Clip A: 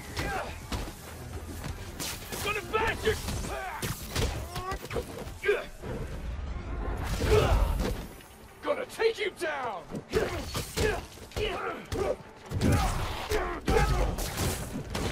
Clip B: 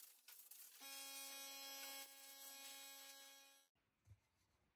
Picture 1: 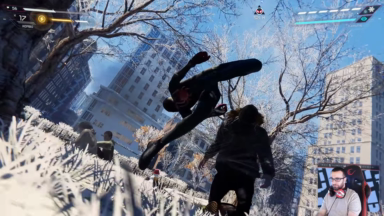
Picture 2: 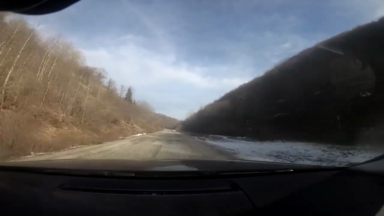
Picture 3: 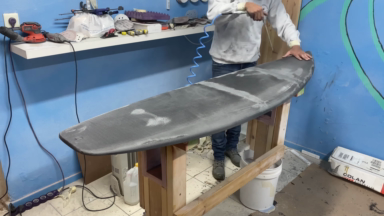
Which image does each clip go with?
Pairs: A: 1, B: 3